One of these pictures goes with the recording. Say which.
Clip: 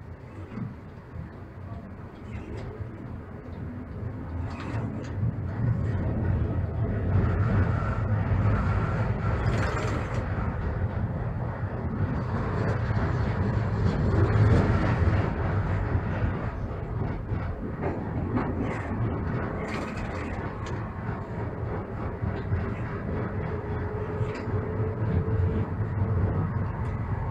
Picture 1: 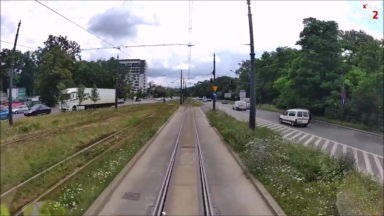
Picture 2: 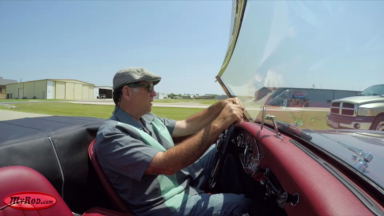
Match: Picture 1